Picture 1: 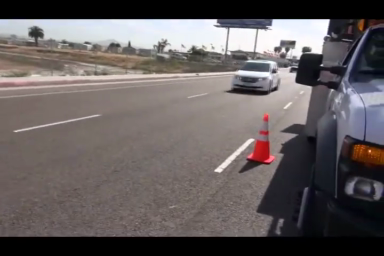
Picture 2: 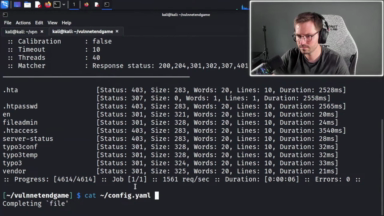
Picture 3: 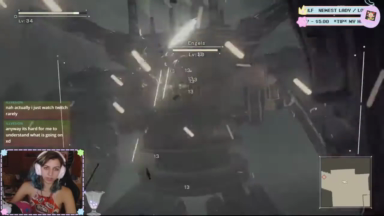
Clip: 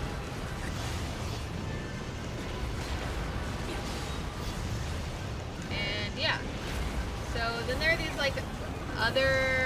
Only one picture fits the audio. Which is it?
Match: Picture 3